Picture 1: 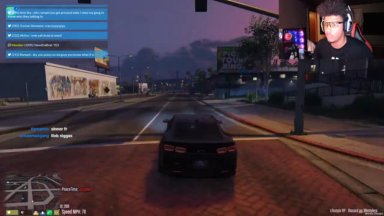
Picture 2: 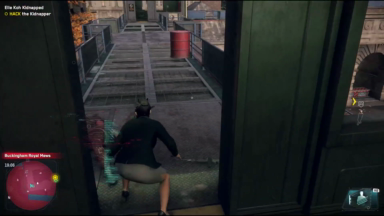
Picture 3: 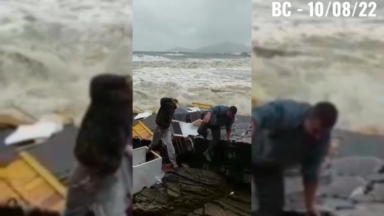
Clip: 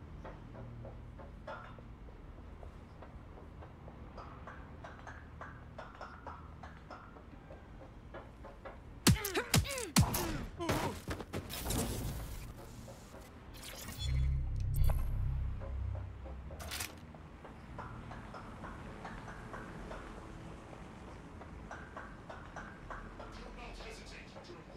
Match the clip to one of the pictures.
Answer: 2